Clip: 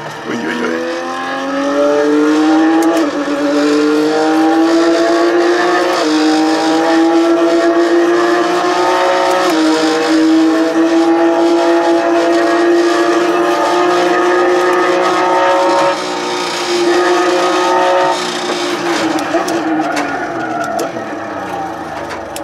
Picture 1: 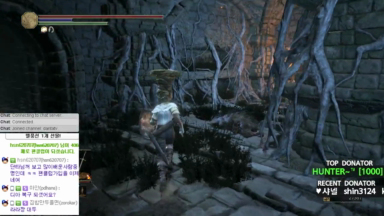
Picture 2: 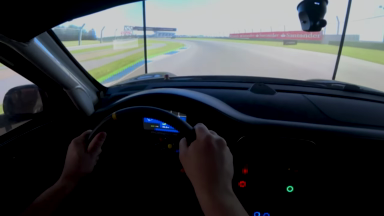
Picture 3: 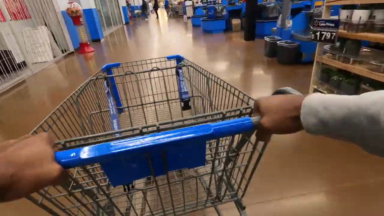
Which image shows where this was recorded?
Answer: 2